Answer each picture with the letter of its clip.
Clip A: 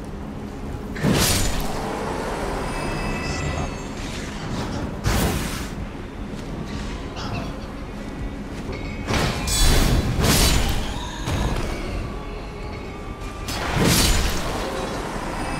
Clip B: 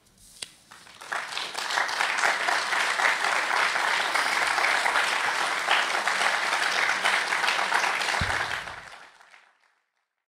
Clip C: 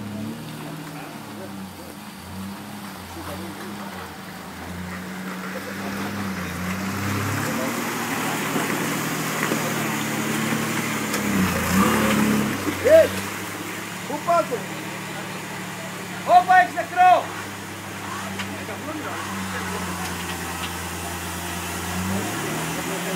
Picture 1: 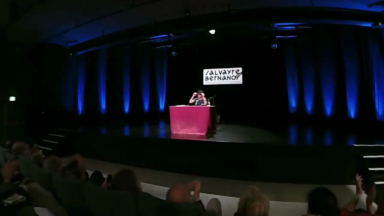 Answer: B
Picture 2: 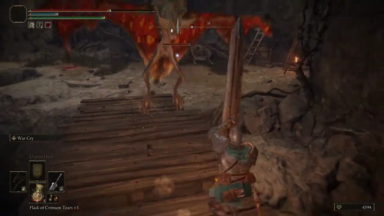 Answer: A